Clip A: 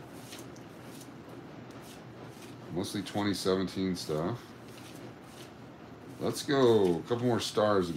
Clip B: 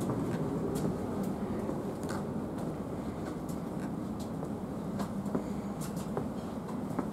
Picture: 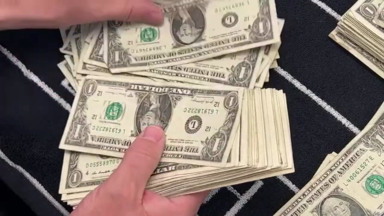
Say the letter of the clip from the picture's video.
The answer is A